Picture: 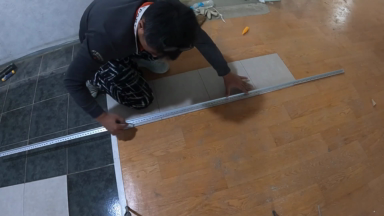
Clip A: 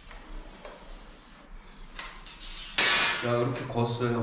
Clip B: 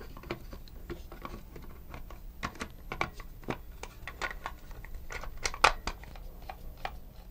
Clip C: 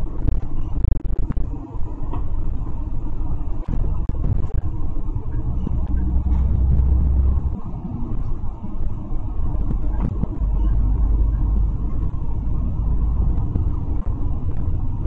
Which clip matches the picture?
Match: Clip A